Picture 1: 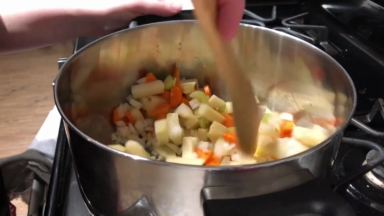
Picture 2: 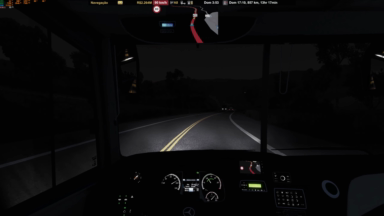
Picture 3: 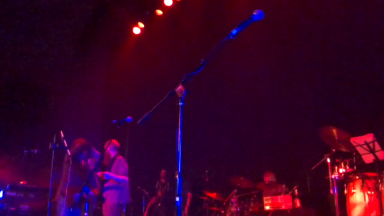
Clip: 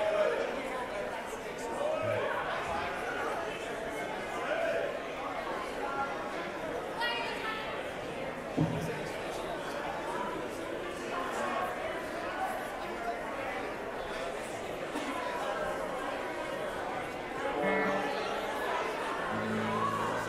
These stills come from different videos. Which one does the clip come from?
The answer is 3